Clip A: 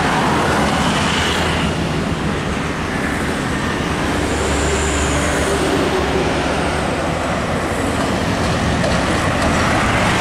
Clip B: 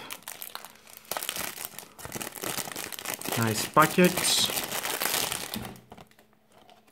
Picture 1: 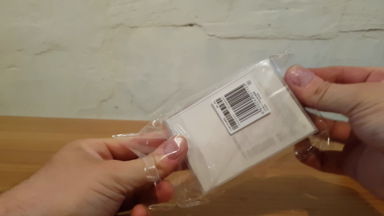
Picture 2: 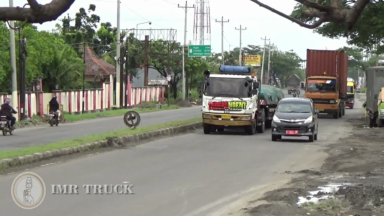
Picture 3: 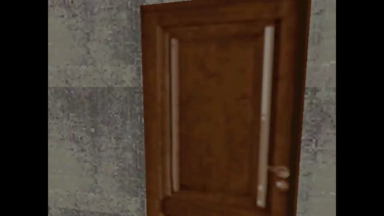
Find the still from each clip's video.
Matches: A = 2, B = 1